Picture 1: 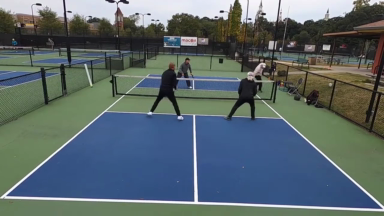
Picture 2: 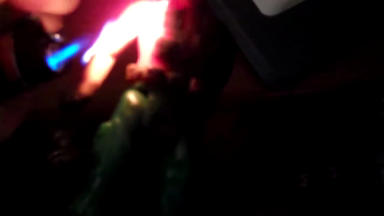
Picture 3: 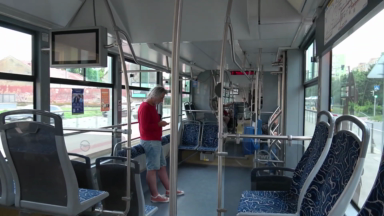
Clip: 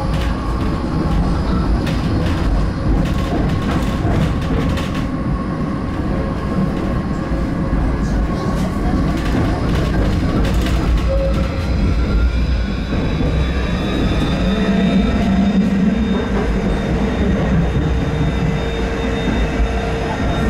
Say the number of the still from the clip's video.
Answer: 3